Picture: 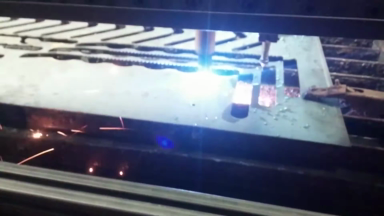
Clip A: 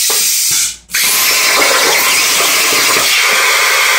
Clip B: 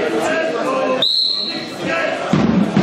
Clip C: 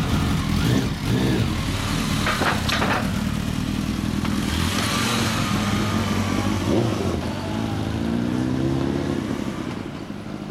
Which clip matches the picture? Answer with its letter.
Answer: A